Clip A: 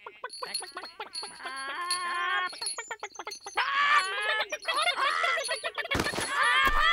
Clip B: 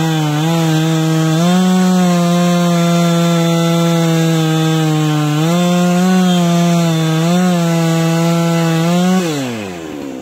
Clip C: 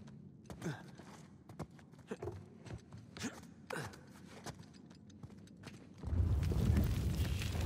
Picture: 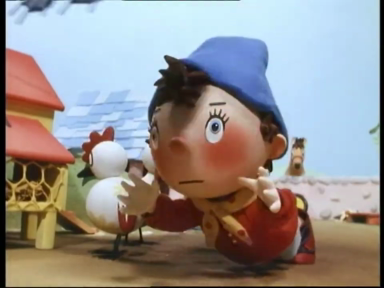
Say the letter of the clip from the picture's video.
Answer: A